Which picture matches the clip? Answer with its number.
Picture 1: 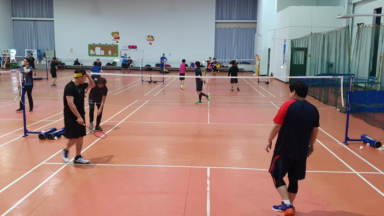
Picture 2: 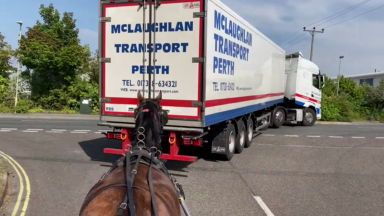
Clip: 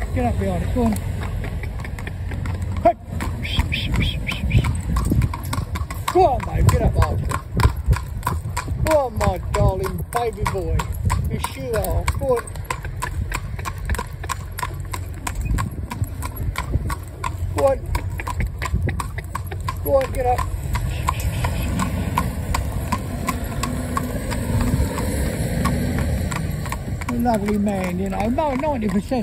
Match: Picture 2